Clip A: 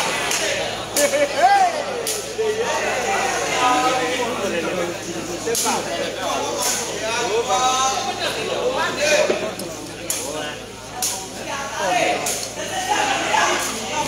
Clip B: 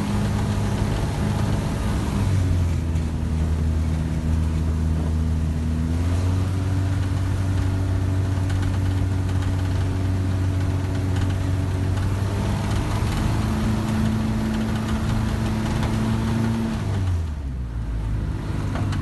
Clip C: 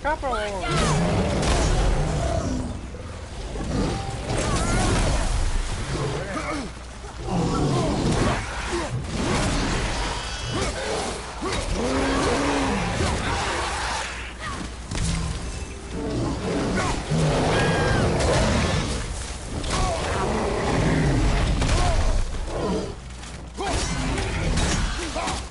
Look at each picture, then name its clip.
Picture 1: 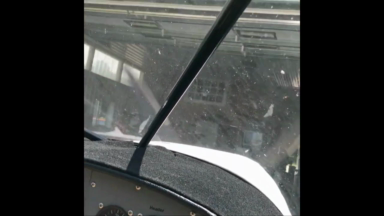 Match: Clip B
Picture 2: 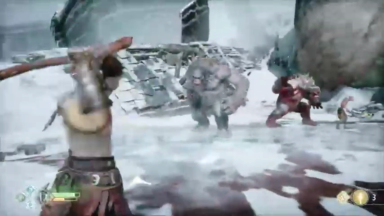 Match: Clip C